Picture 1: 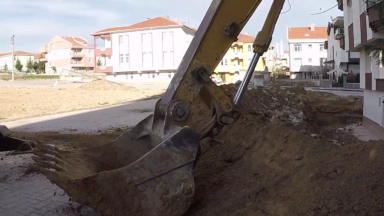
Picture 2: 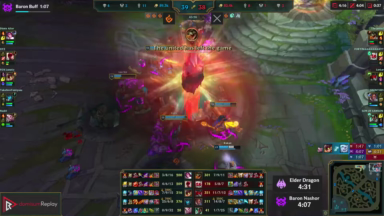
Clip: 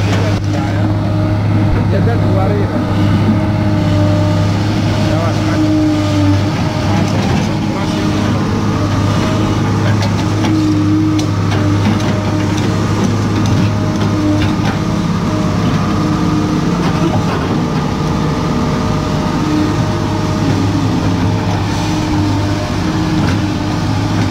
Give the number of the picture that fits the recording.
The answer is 1